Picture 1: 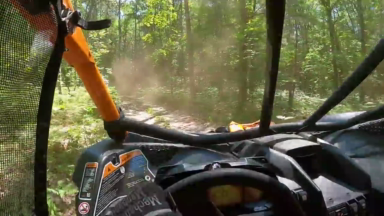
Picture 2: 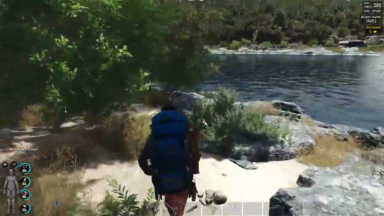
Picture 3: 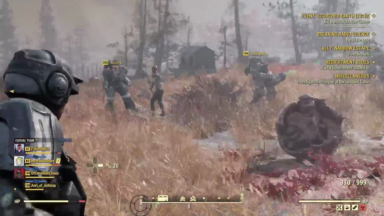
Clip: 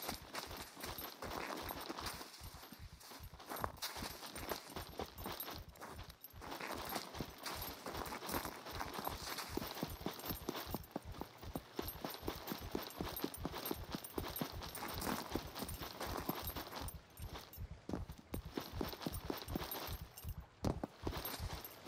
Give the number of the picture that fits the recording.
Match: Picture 2